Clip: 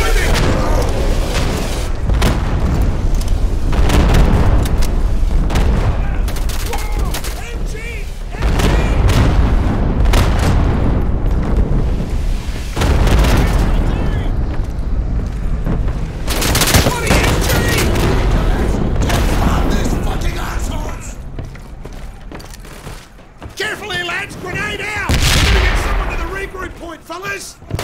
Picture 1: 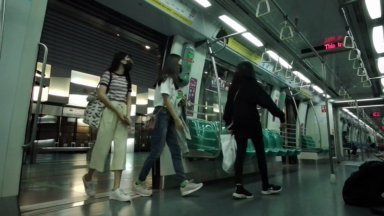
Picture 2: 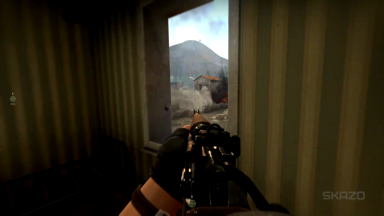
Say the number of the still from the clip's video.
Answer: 2